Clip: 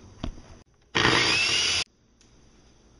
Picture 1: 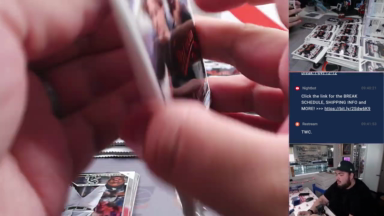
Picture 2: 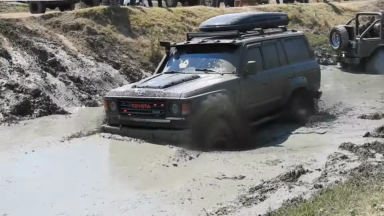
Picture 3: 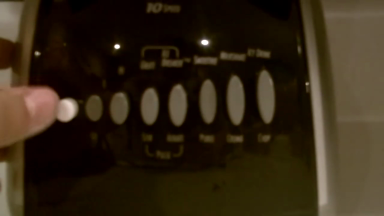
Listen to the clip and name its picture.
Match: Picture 3